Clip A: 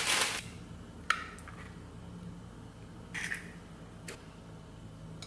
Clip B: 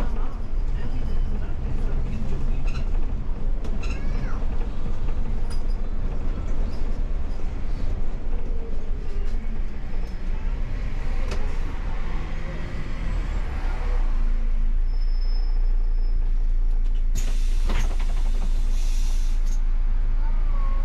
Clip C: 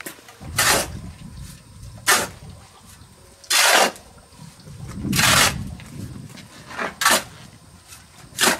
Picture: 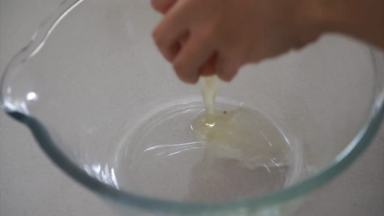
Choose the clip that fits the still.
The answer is A